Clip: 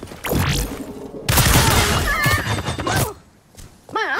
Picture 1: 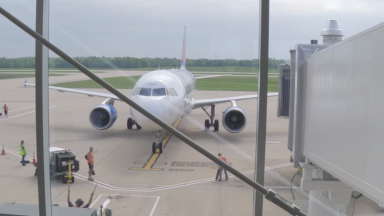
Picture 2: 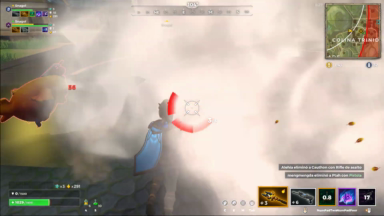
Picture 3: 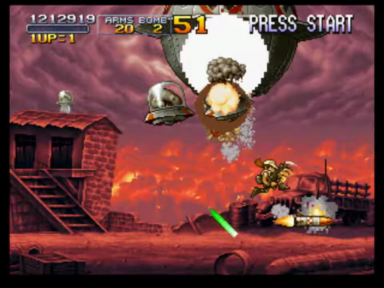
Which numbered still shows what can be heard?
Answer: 2